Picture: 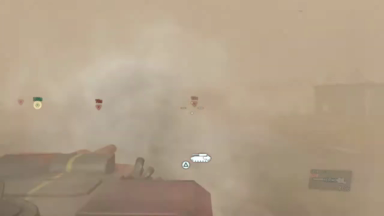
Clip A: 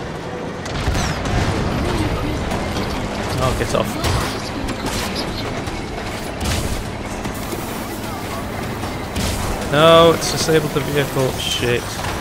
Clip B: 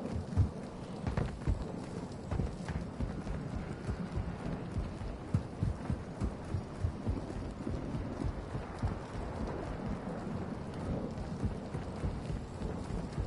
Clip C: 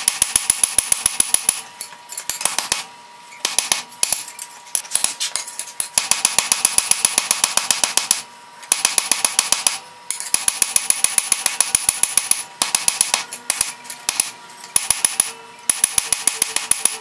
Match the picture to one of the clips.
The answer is A